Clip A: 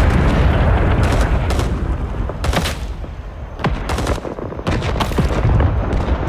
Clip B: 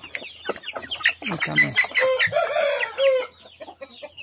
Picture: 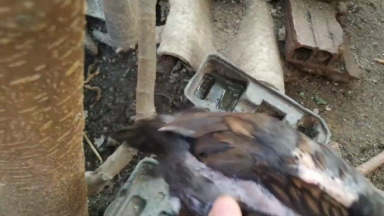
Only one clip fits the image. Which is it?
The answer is B